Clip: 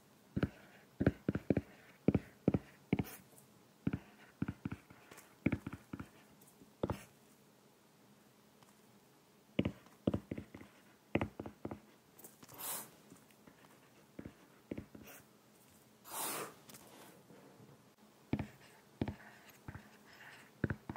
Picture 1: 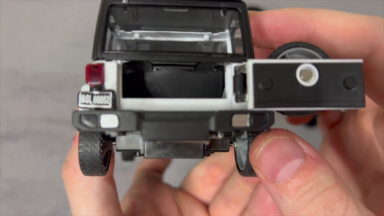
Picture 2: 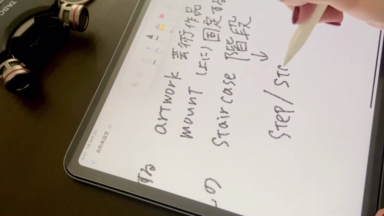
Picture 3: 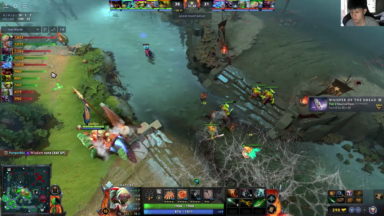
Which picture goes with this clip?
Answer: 2